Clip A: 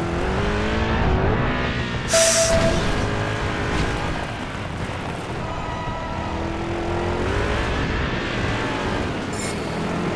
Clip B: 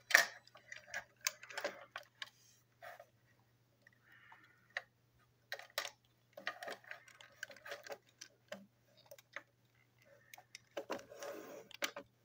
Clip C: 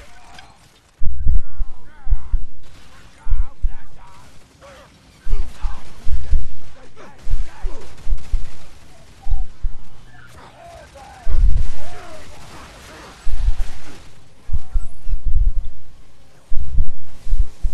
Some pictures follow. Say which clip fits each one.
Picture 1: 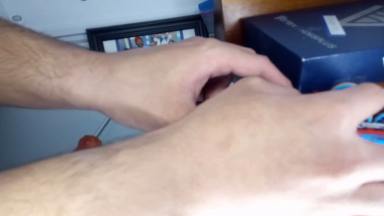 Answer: B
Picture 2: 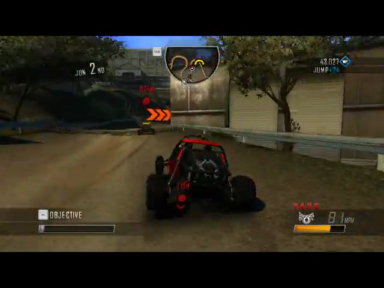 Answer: A